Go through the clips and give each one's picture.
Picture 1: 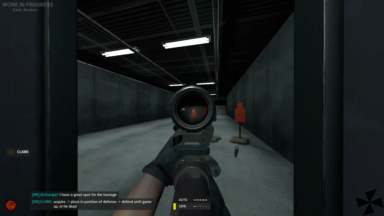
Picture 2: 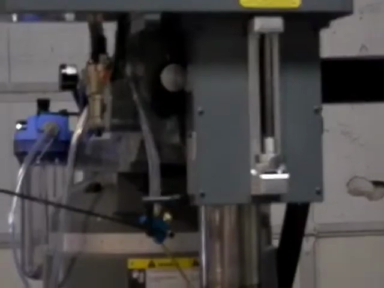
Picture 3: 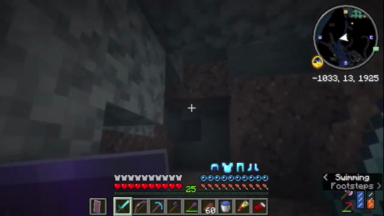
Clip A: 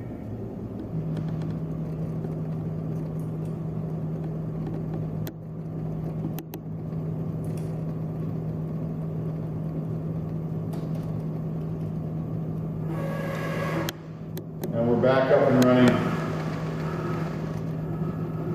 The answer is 2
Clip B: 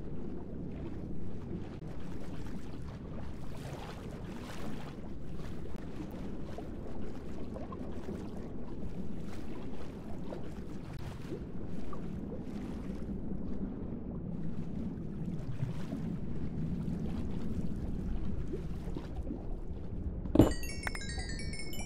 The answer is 3